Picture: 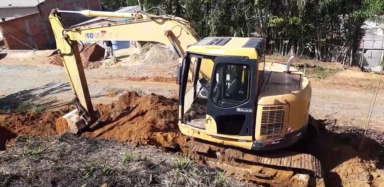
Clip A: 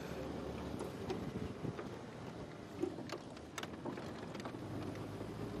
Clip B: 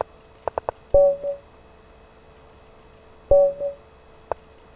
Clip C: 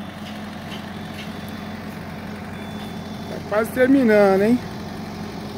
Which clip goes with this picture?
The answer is C